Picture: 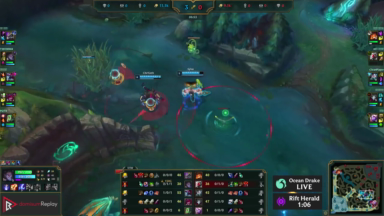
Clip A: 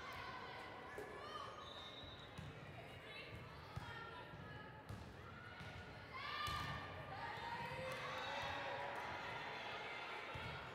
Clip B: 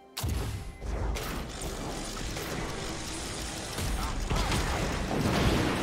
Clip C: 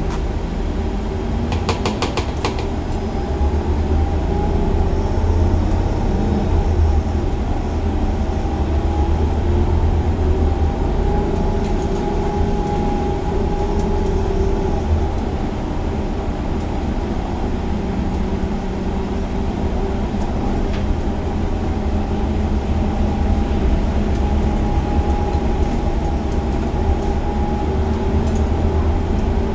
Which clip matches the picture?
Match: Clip B